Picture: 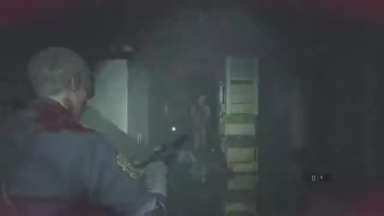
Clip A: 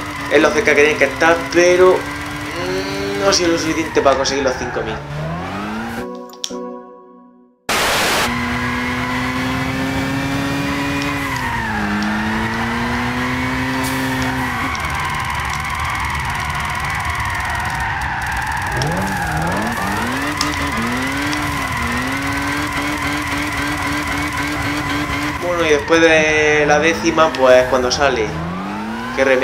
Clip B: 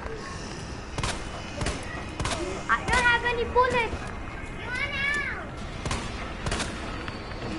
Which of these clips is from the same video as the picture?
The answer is B